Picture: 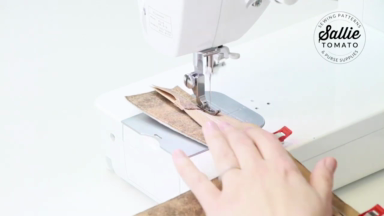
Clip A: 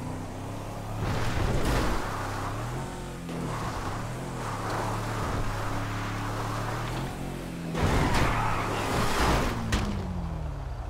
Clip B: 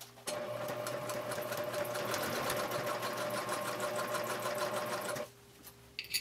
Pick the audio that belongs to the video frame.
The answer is B